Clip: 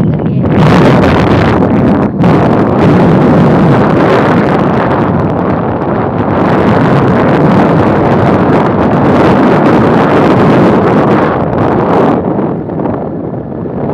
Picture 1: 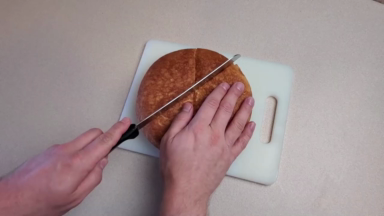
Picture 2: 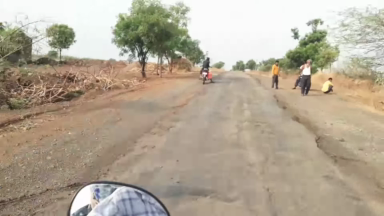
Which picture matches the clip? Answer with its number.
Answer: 2